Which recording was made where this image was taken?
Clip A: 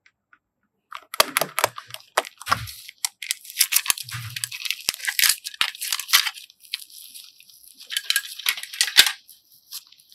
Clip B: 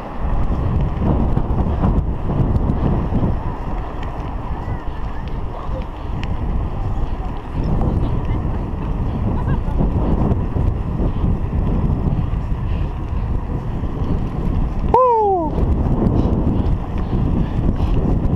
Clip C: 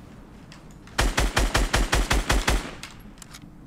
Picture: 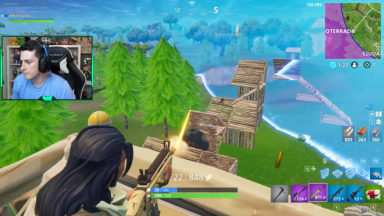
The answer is C